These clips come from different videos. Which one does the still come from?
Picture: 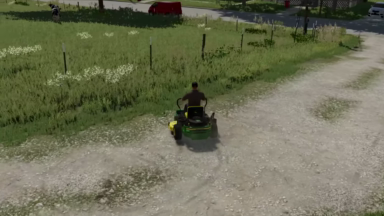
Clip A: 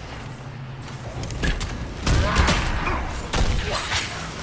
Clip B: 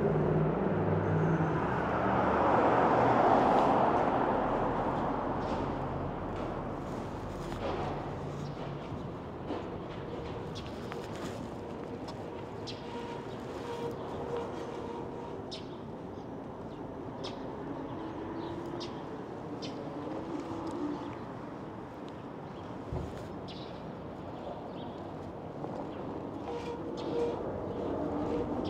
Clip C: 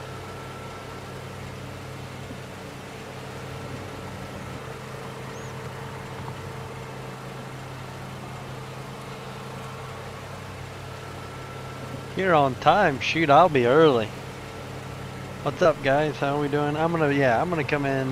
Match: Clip C